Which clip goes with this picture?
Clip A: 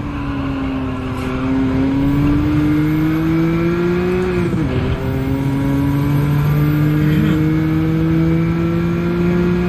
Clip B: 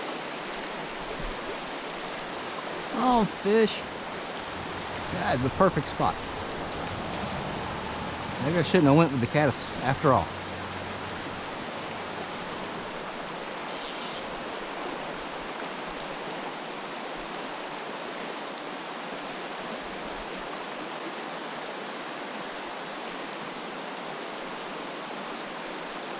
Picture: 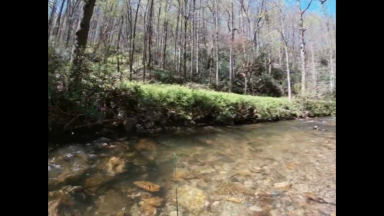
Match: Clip B